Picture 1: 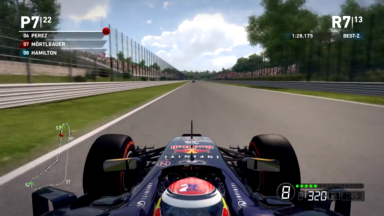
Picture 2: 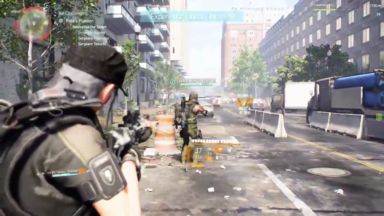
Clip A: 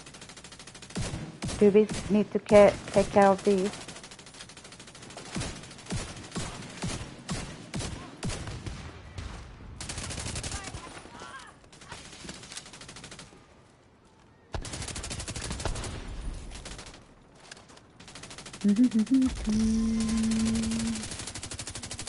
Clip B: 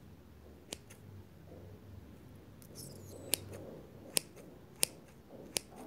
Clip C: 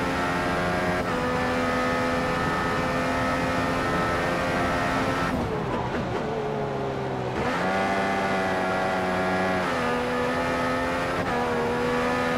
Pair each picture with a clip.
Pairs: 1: C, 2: A